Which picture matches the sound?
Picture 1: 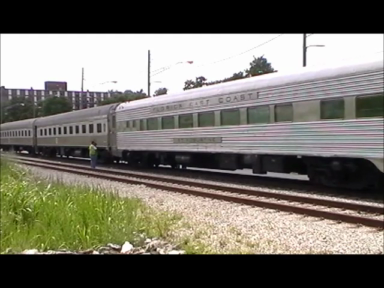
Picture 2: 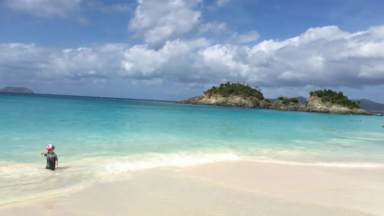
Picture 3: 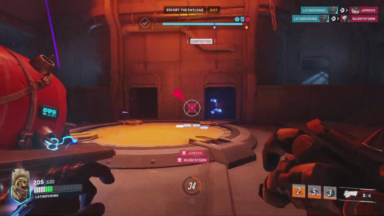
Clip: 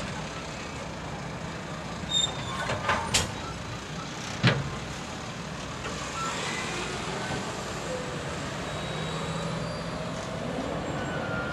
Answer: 1